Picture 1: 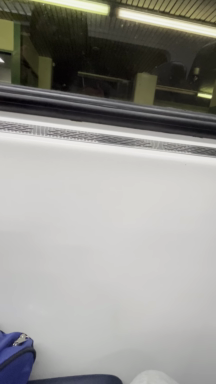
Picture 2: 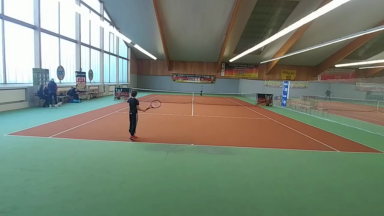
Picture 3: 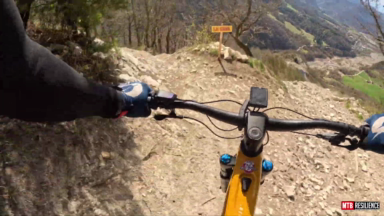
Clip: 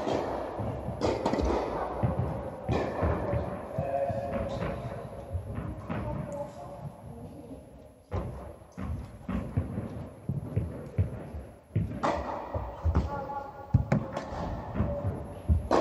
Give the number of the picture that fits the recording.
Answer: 2